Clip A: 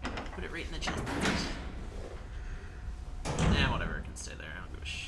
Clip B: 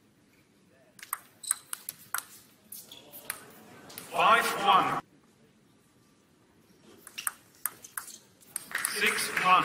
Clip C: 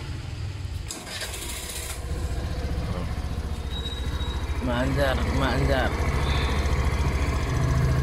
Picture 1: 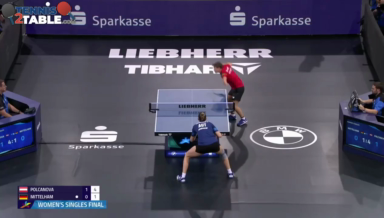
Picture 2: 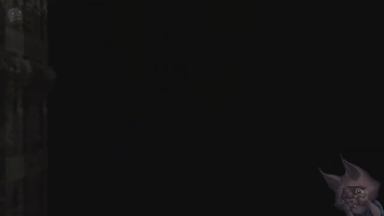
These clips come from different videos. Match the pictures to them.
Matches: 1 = B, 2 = A